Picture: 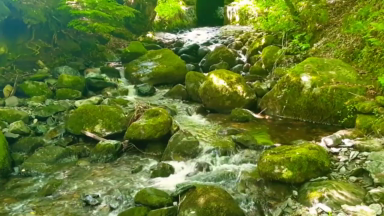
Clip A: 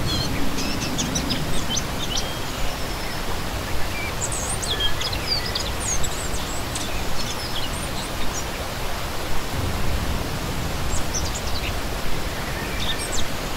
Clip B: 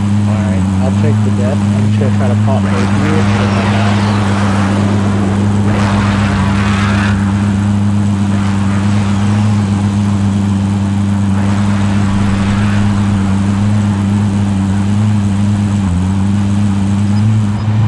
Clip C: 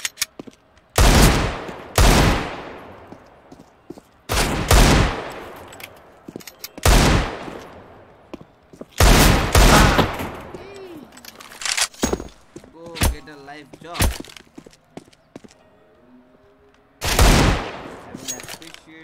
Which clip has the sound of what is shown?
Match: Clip A